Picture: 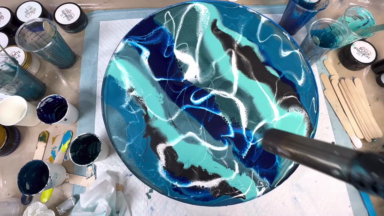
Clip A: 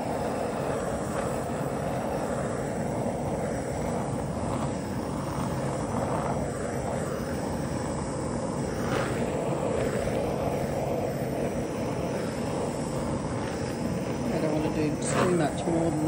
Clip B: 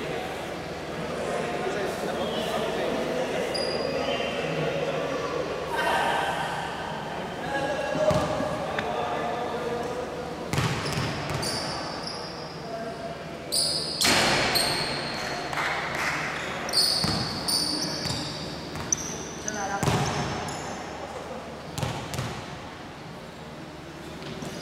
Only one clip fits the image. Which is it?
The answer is A